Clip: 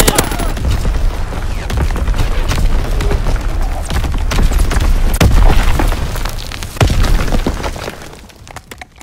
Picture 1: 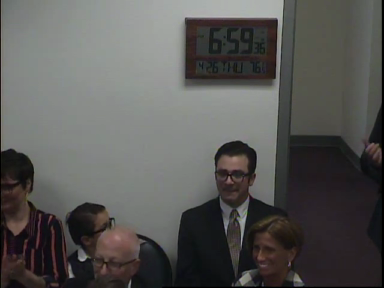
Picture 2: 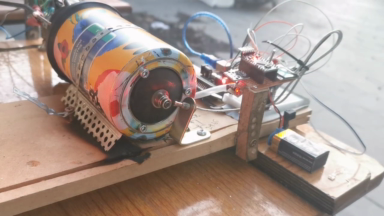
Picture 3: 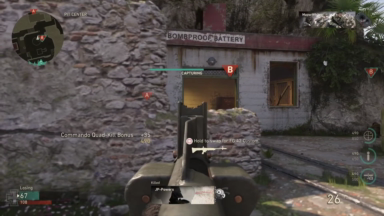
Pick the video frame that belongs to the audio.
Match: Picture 3